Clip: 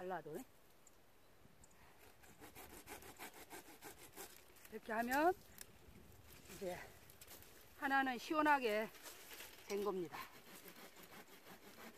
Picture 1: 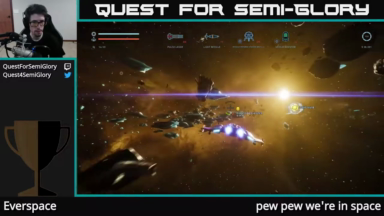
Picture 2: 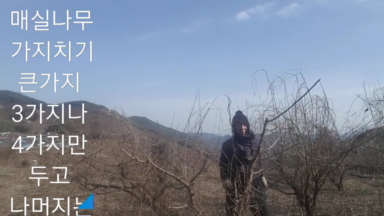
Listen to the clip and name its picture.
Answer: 2